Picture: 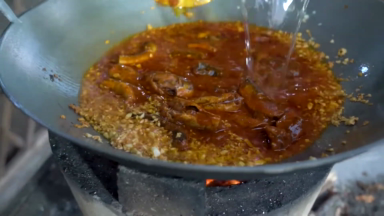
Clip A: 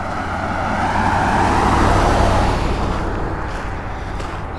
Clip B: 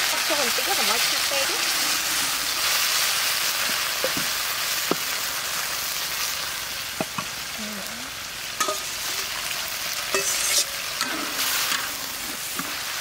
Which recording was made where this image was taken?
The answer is B